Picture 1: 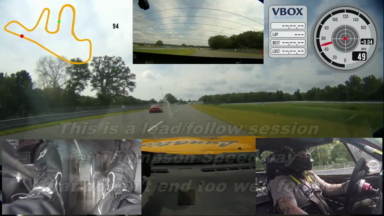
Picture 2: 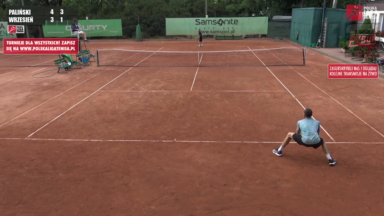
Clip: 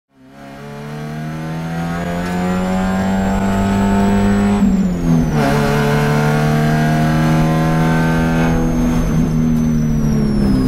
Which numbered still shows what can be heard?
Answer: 1